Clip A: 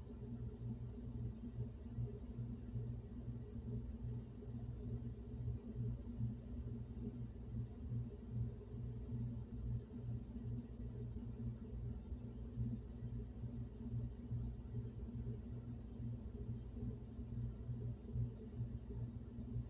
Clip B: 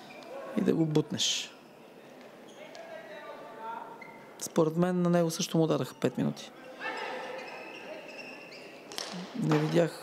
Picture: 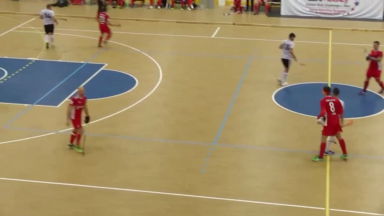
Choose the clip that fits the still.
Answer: B